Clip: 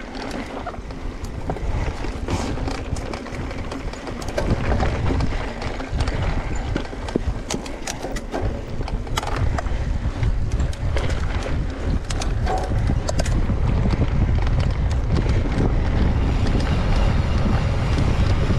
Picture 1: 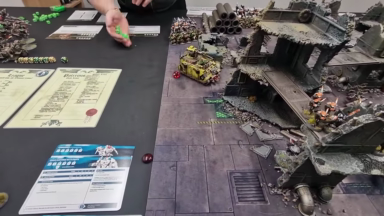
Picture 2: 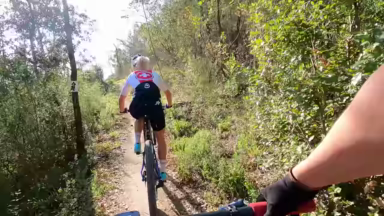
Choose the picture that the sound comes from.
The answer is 2